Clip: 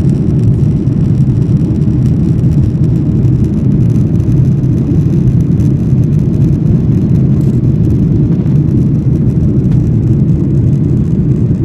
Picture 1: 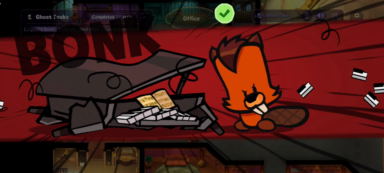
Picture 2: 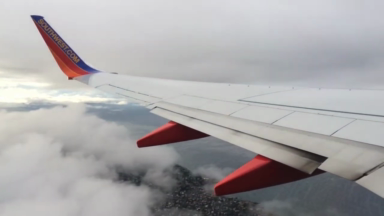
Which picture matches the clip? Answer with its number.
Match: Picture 2